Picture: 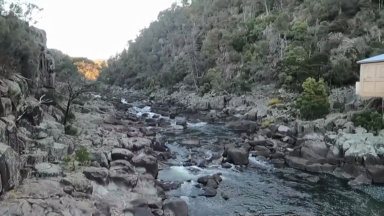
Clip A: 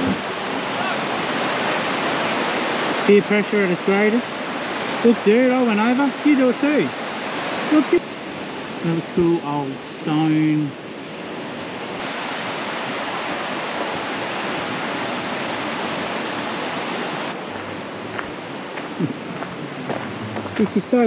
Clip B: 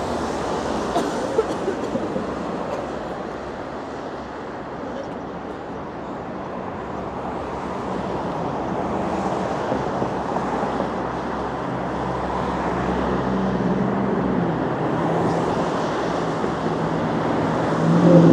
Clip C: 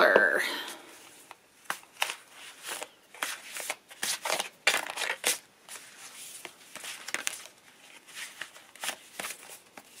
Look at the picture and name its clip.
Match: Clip A